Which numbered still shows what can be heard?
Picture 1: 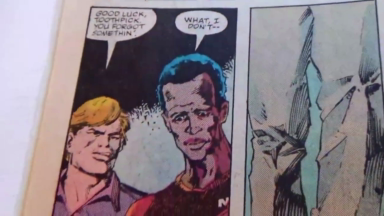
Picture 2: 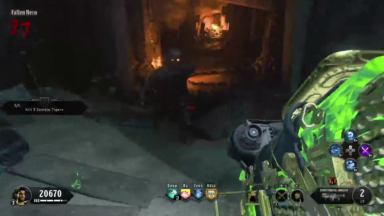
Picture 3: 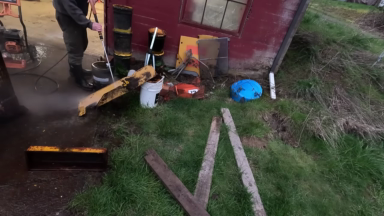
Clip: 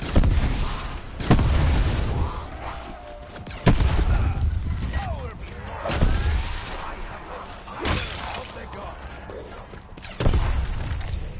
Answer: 2